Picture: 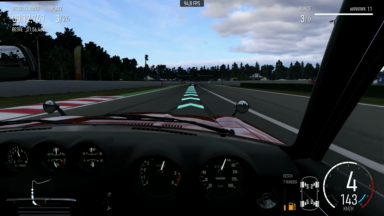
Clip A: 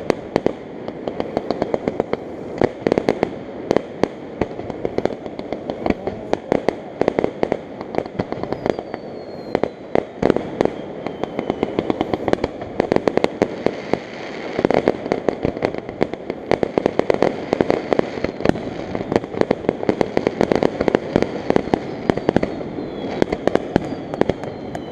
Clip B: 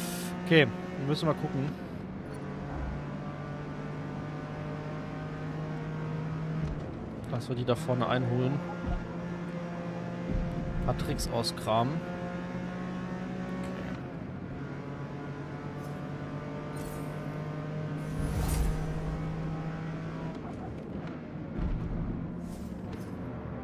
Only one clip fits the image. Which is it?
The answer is B